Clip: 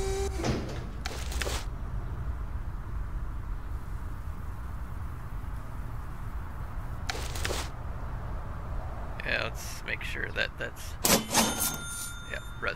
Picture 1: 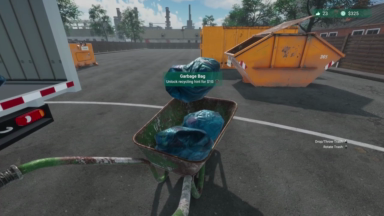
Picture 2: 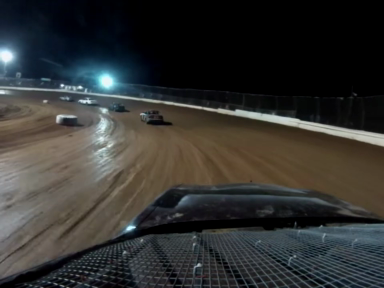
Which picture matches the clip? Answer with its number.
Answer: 1